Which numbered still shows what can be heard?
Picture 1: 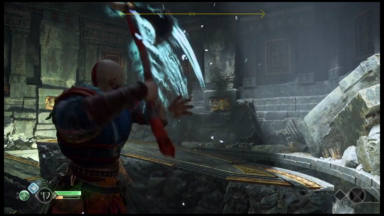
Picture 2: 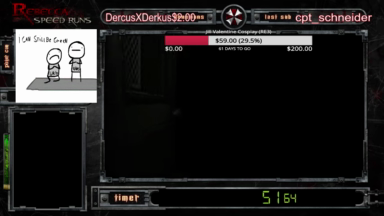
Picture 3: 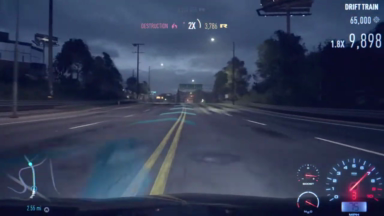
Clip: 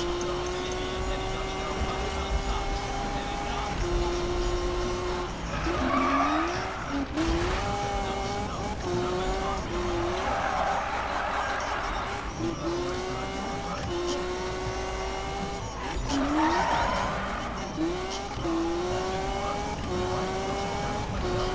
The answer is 3